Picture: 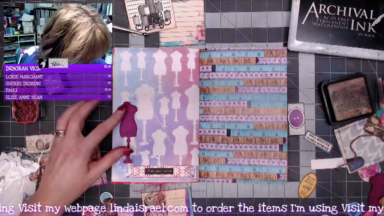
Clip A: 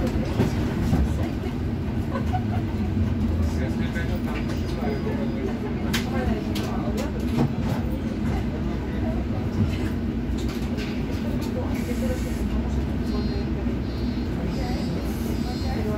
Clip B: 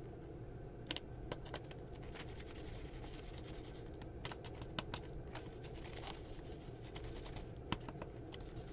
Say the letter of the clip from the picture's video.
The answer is B